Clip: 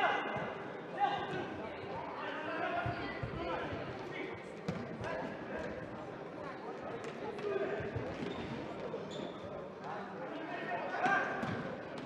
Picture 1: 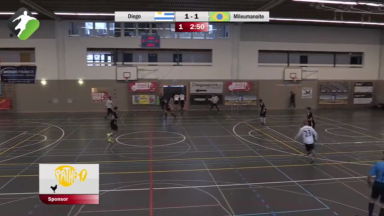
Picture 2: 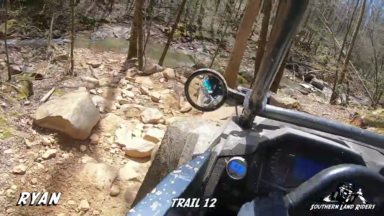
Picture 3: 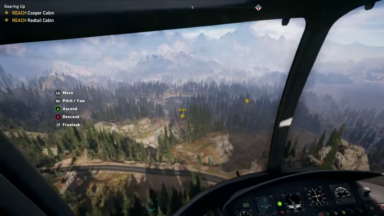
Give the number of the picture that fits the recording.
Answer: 1